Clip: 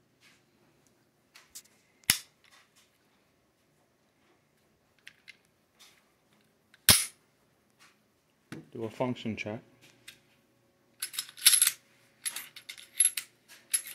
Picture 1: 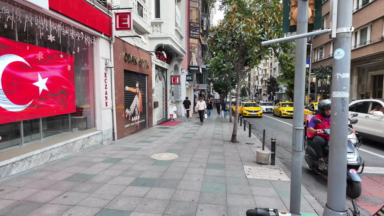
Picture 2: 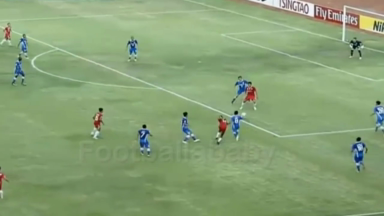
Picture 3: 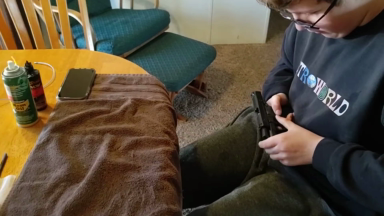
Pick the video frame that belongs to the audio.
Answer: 3